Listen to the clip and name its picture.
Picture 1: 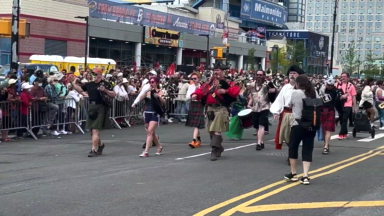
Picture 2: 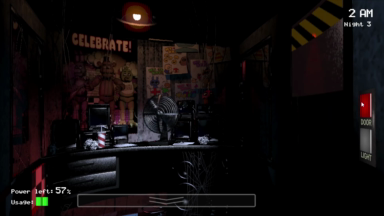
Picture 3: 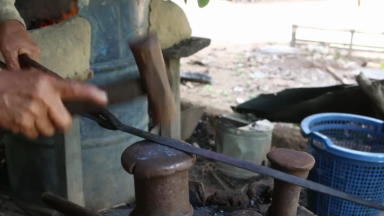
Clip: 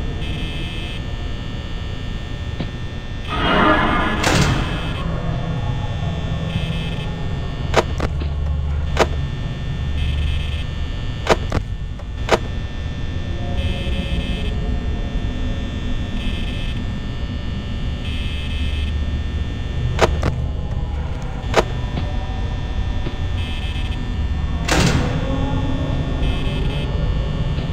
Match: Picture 2